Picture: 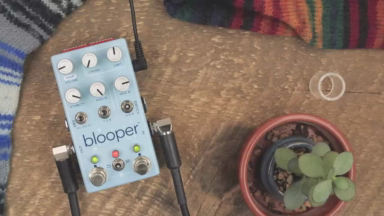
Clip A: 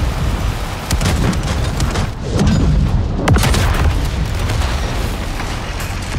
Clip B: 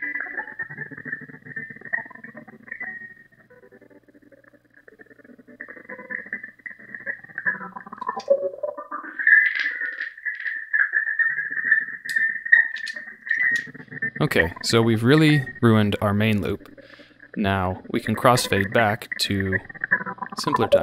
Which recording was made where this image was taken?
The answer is B